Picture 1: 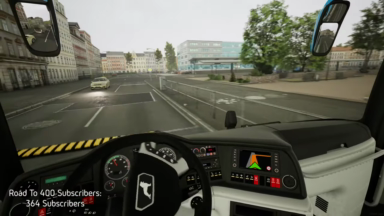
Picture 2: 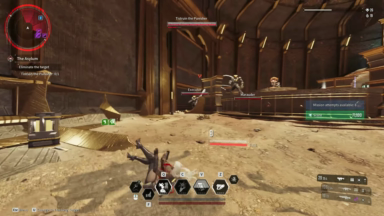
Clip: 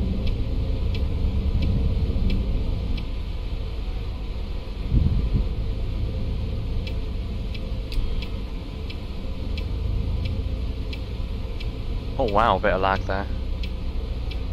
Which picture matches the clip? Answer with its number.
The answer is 1